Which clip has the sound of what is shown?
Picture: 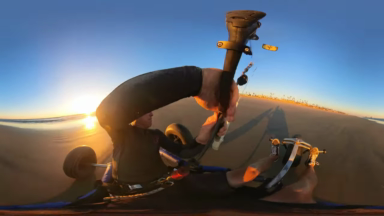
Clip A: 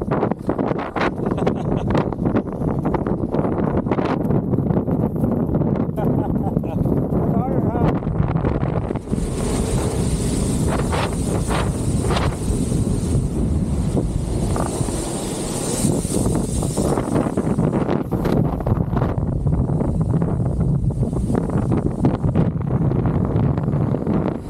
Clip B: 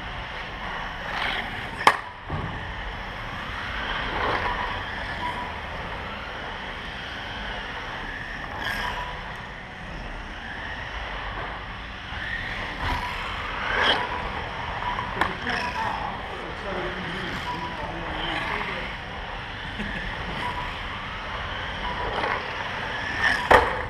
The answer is A